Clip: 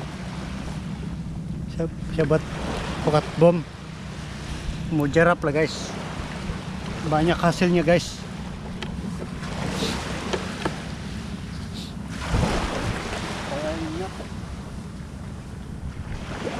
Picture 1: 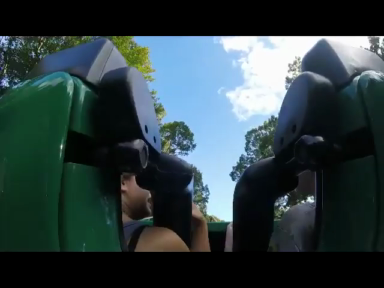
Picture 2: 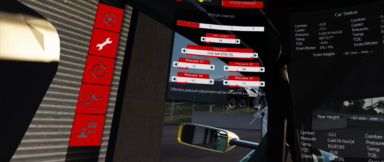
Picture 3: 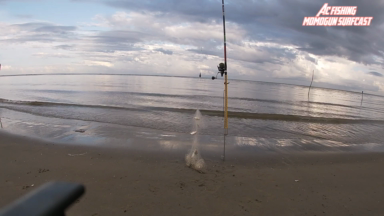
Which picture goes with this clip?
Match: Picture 3